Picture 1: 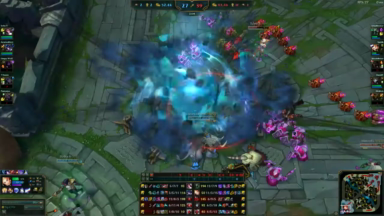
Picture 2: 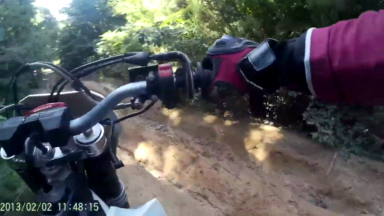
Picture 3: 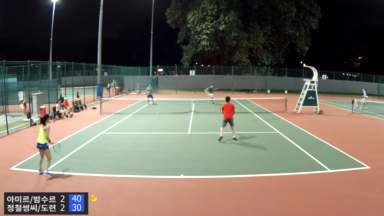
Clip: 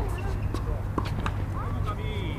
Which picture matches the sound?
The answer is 3